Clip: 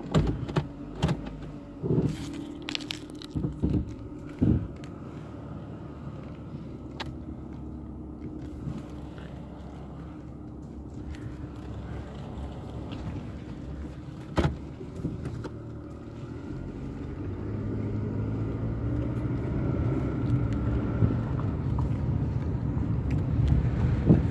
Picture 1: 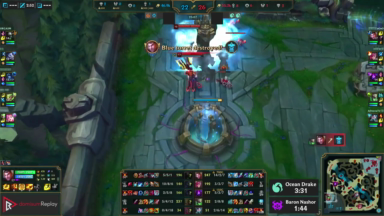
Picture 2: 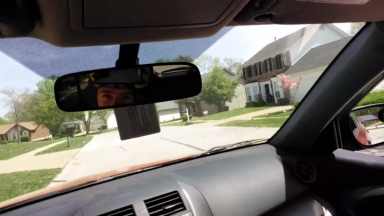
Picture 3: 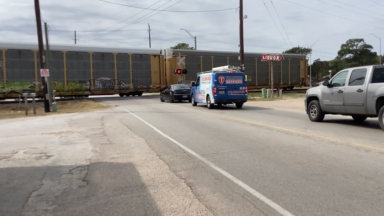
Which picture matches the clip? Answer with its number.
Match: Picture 2